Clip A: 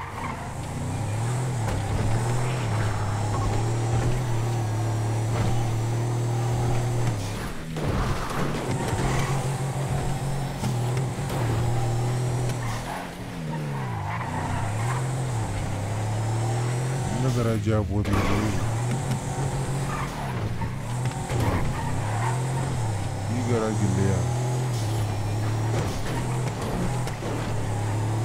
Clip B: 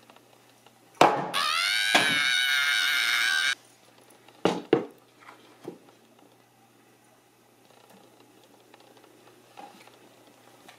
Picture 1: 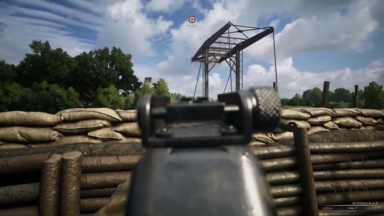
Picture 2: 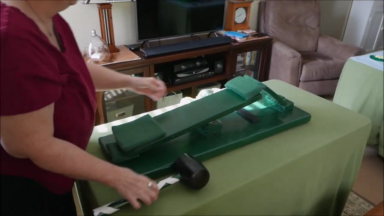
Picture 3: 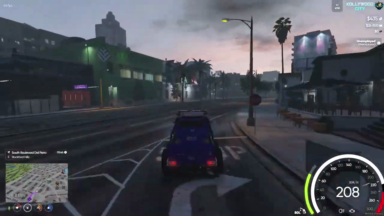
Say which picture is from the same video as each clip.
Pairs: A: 3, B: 2